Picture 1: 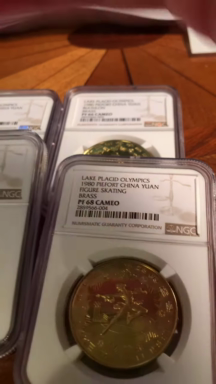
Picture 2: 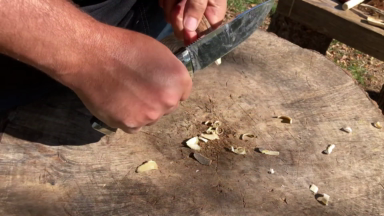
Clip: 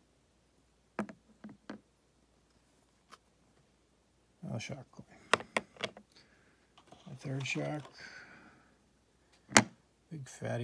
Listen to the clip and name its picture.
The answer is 1